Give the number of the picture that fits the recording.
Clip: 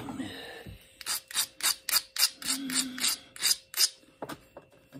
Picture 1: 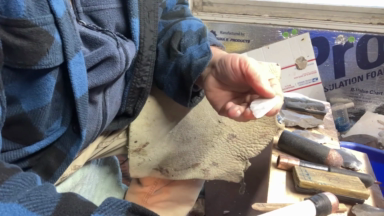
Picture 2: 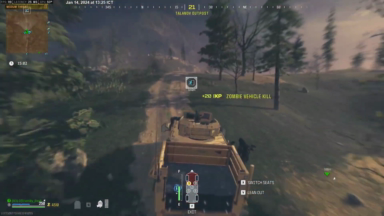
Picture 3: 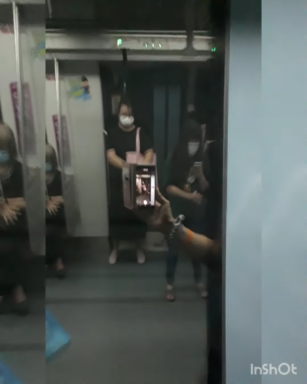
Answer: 1